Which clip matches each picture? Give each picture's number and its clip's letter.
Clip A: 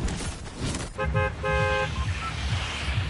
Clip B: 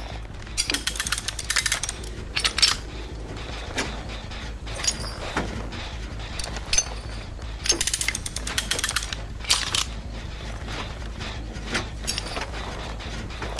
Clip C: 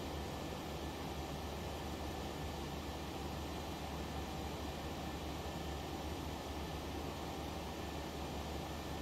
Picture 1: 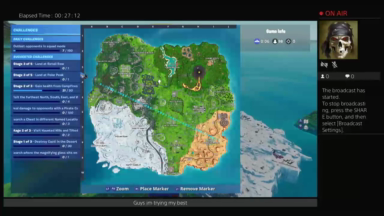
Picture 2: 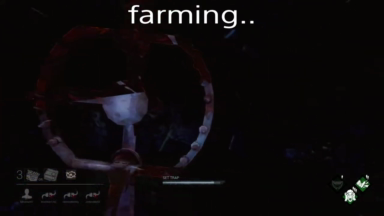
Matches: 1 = A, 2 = B